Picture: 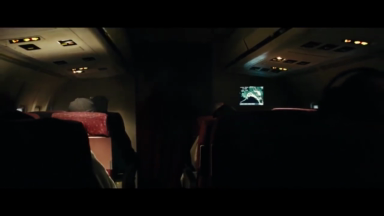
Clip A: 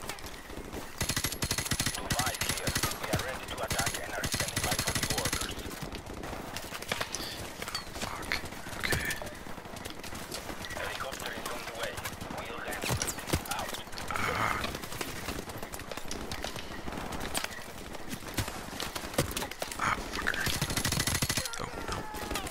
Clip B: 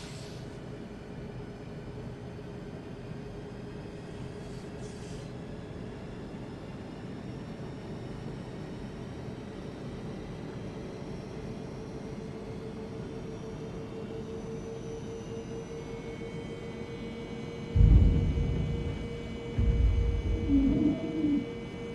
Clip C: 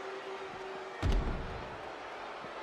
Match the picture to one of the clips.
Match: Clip B